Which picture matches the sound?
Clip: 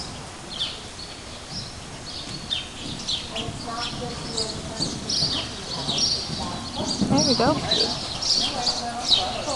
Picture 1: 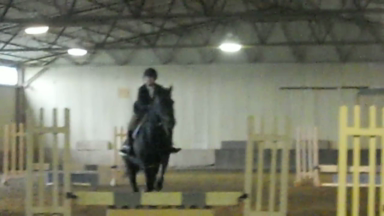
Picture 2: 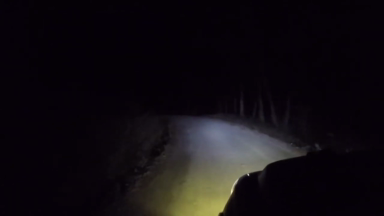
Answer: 1